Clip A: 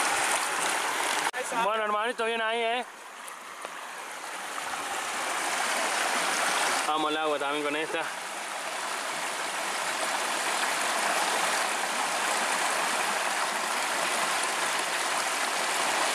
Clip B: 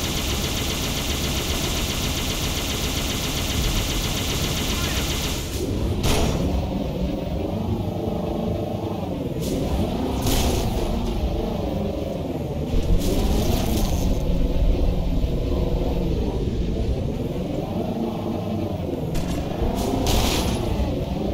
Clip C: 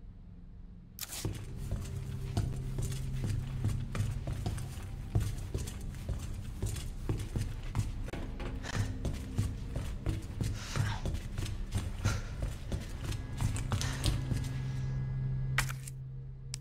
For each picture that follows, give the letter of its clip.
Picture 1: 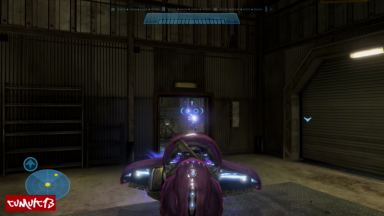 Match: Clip B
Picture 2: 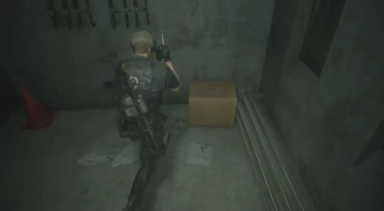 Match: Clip C